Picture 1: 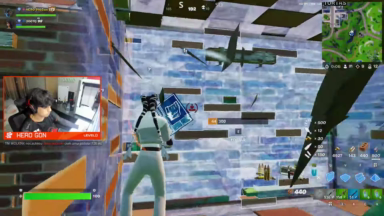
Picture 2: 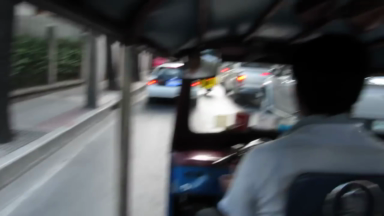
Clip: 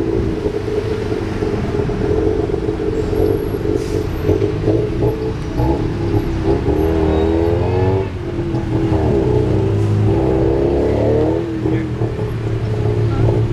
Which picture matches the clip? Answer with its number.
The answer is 2